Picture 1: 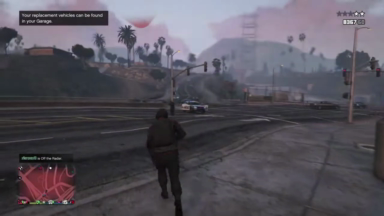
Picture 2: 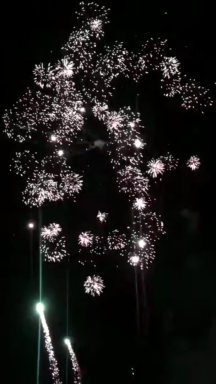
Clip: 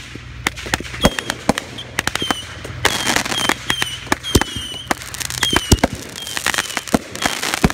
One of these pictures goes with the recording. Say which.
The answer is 2